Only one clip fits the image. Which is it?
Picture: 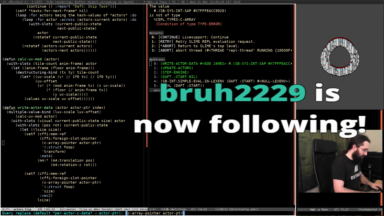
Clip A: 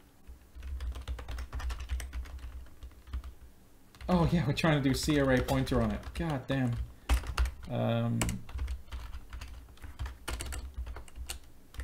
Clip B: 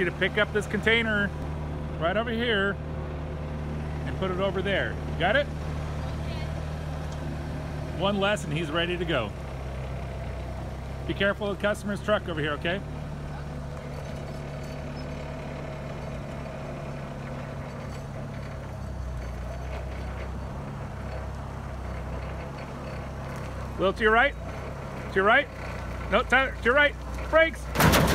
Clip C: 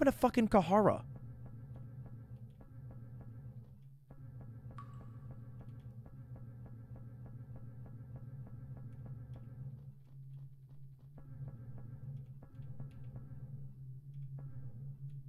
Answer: A